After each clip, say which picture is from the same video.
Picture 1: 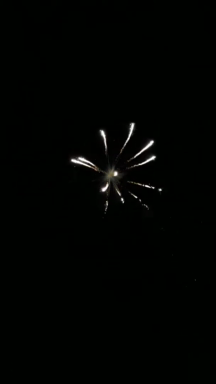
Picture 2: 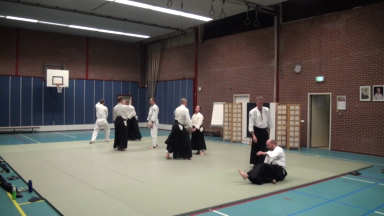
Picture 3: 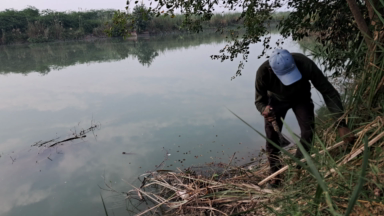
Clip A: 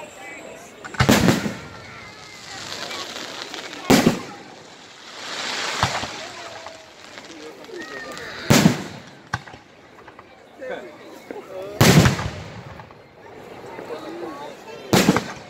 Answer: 1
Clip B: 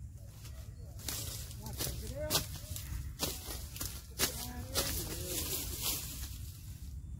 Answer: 3